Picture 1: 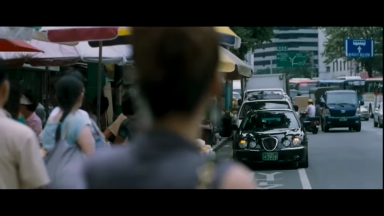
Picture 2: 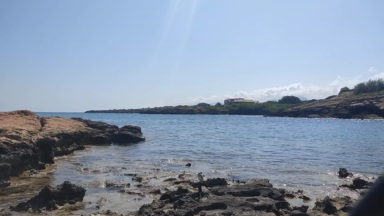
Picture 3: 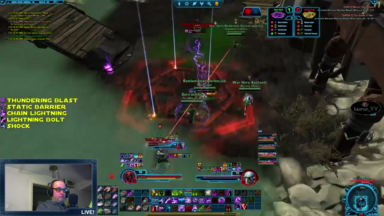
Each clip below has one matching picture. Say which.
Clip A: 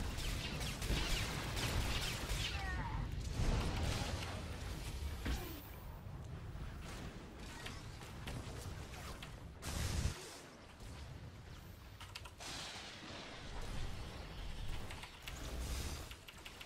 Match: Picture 3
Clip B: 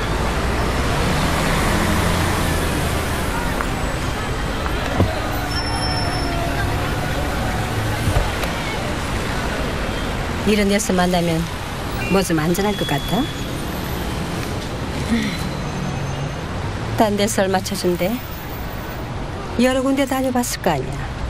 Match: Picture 1